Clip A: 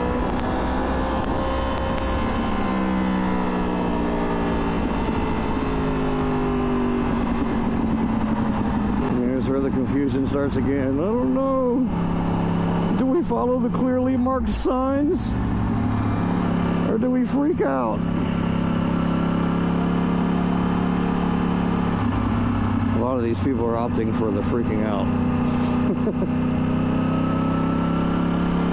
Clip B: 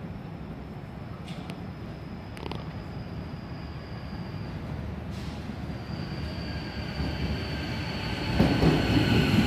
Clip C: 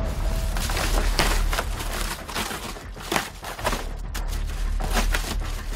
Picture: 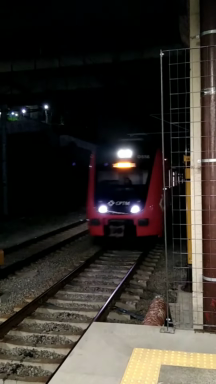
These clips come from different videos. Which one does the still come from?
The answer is B